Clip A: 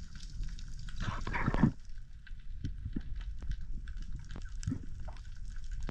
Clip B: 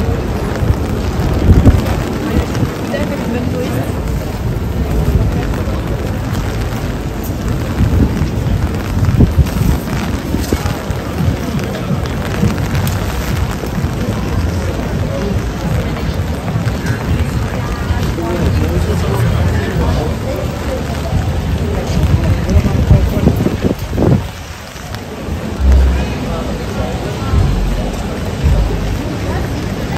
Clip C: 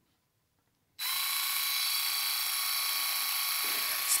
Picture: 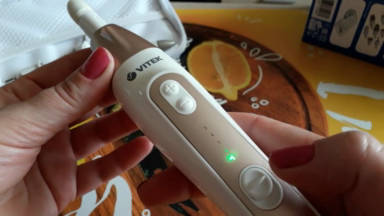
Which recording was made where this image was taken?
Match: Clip C